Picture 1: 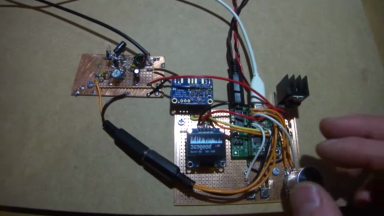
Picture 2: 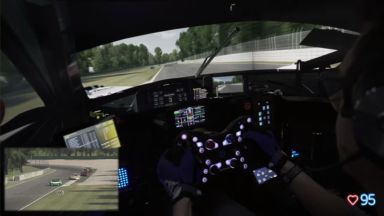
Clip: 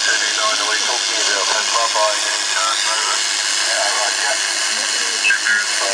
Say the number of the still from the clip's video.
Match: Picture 1